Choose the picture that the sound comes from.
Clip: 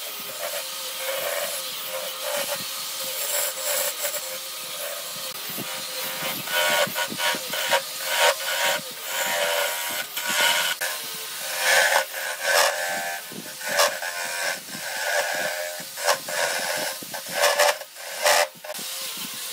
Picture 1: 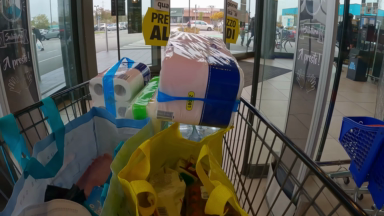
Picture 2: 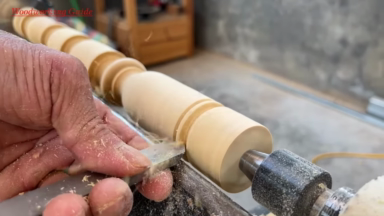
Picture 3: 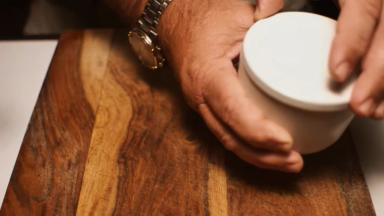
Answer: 2